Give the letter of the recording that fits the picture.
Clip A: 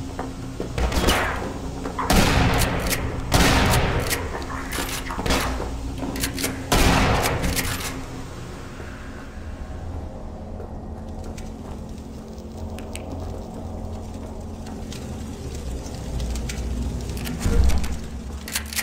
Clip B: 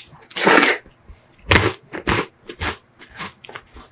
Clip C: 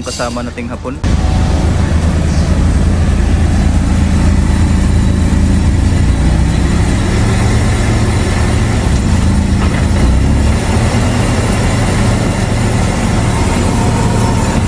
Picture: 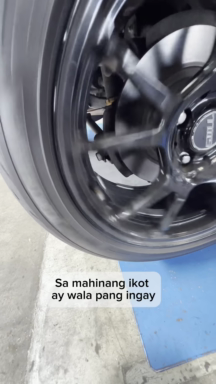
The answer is C